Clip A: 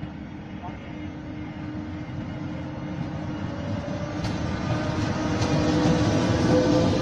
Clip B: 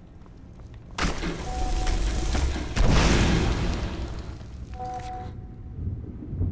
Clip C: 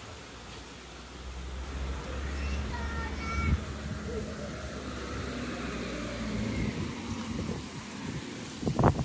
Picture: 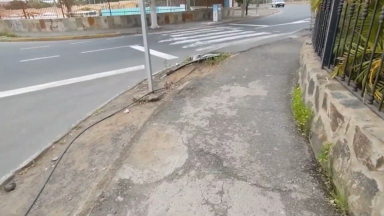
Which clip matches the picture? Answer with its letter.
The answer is C